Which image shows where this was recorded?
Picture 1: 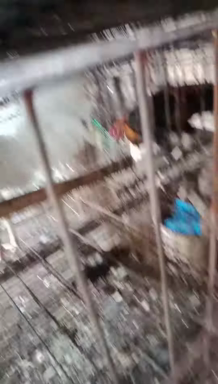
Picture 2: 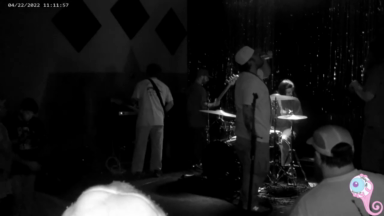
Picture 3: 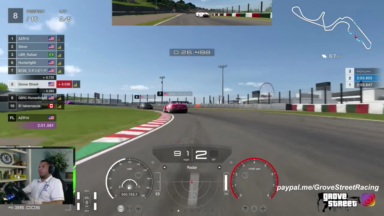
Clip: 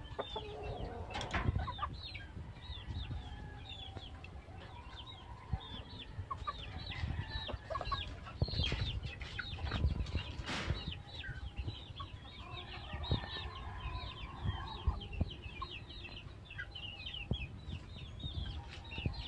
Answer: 1